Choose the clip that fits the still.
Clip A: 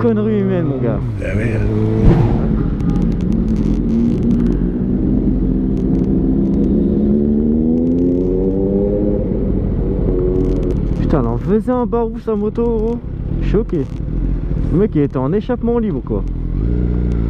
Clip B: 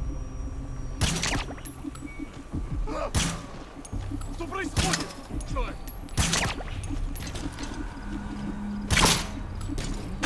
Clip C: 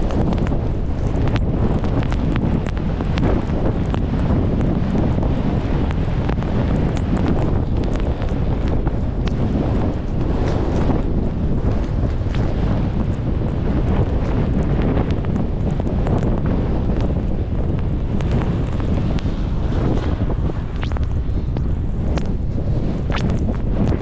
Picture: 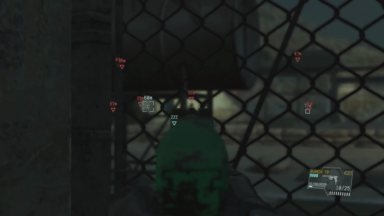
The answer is B